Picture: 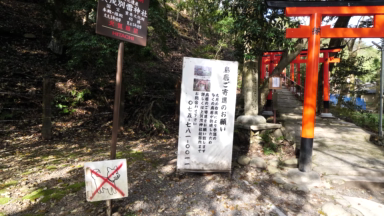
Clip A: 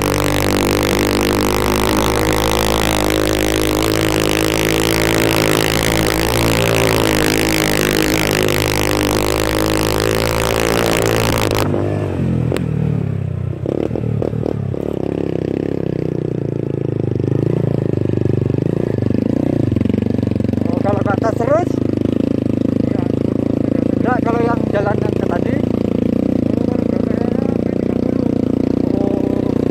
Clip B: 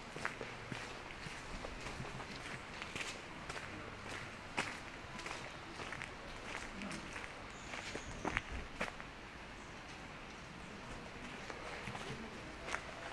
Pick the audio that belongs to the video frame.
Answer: B